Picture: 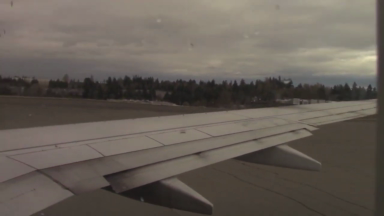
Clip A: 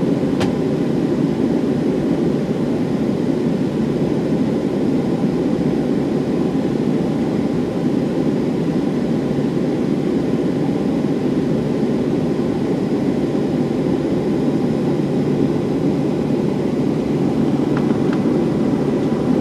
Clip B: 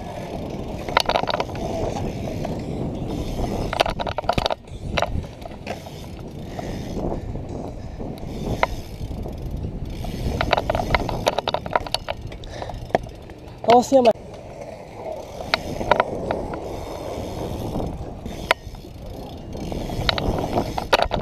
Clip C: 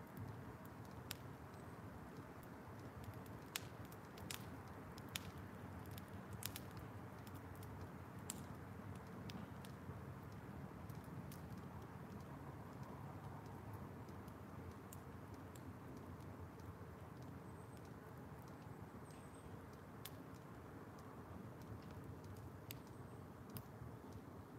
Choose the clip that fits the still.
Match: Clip A